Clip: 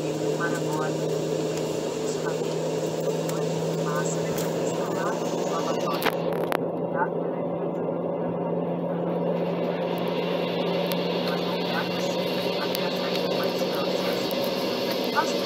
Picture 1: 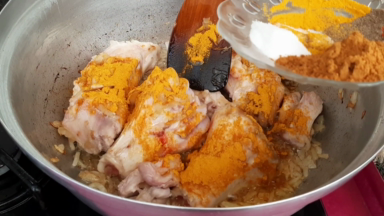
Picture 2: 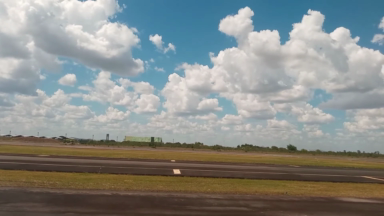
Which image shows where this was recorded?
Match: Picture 2